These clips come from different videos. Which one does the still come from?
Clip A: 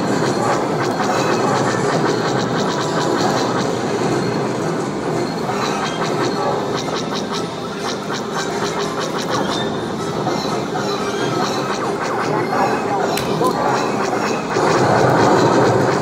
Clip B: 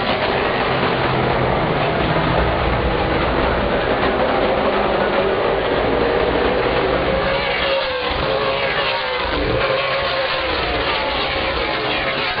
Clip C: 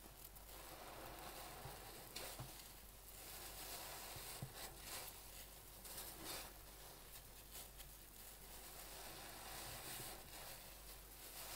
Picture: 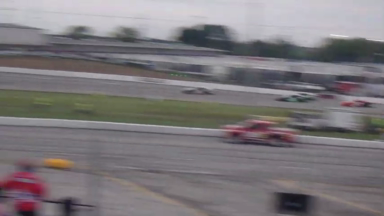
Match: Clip B